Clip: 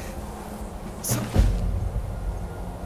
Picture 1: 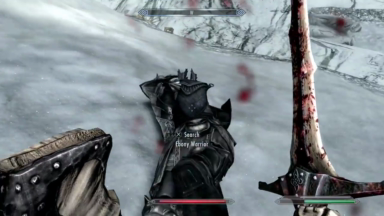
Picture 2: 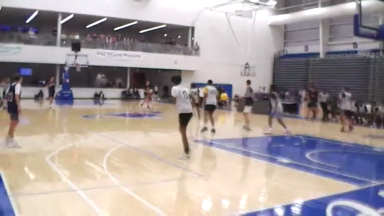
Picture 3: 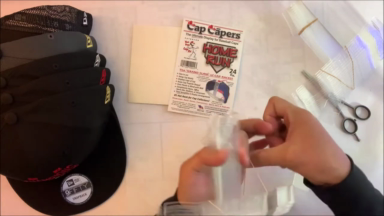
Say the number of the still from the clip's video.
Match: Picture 1